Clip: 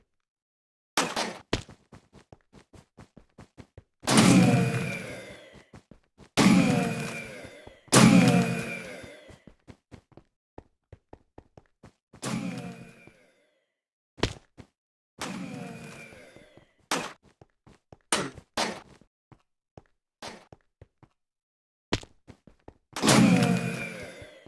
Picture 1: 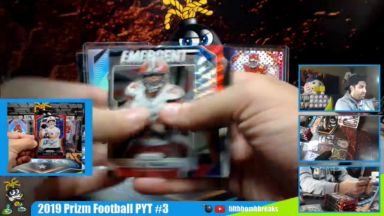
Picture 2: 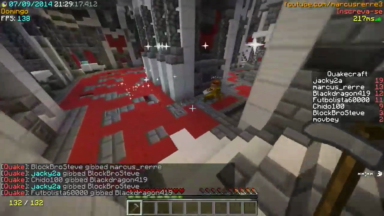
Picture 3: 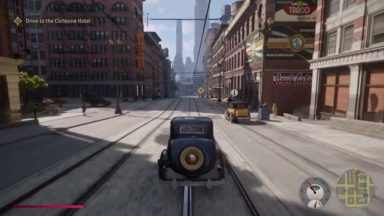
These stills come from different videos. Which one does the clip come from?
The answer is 2